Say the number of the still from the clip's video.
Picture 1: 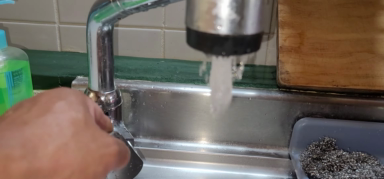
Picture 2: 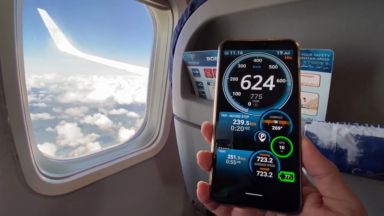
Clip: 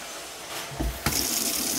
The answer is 1